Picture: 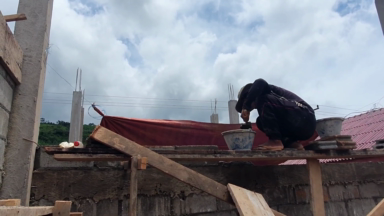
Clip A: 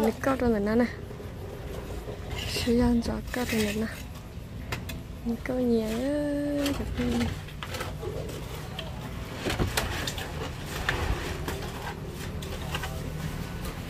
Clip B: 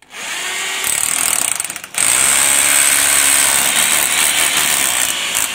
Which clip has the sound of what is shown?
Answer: A